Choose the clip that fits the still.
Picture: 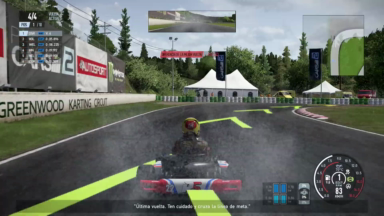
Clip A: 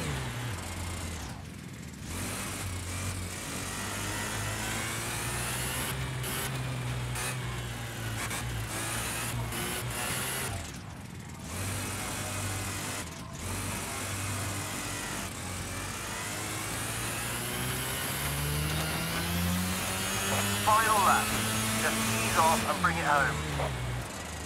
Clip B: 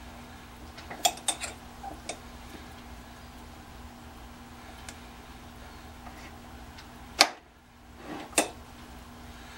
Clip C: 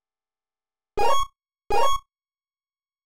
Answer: A